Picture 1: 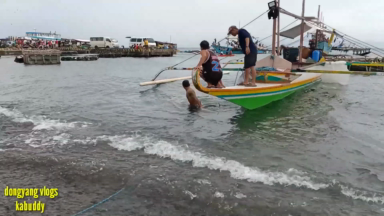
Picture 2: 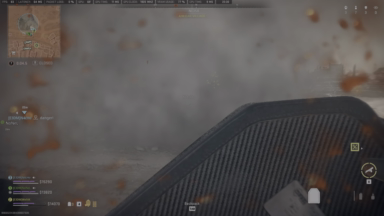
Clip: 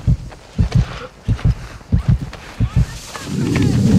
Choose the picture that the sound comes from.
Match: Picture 2